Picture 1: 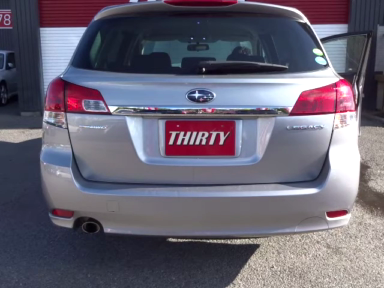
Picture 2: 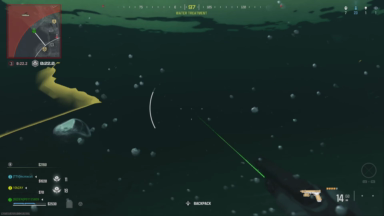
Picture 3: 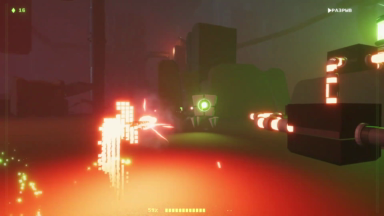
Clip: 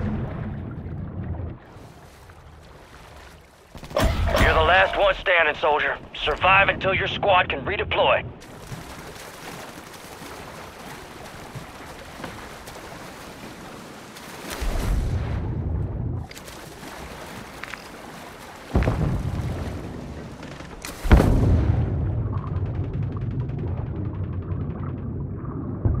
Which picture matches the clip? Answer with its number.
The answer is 2